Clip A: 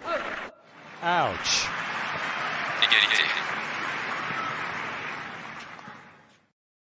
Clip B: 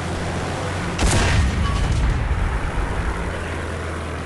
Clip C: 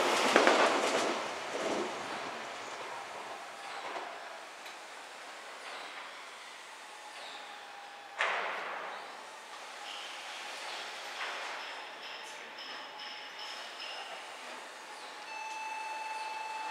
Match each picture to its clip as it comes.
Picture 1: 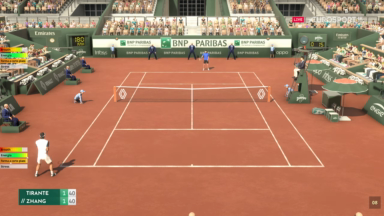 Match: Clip A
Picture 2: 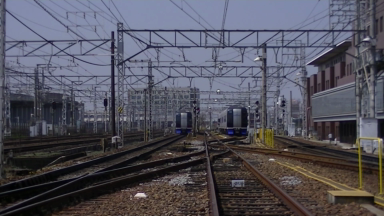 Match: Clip C